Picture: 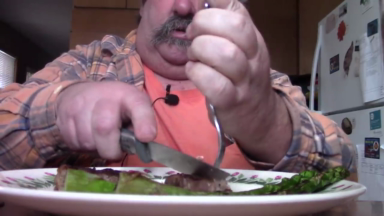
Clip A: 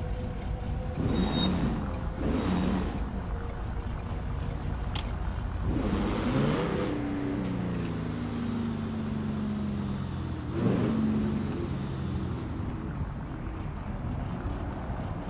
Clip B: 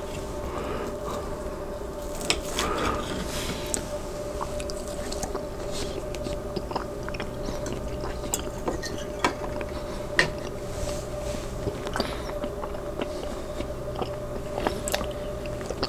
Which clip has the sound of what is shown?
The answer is B